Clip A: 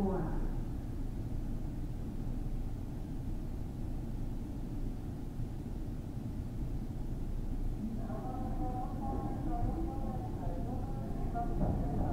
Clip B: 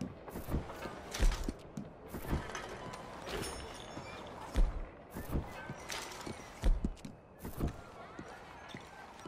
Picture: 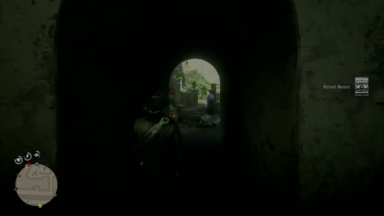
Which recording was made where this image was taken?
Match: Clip B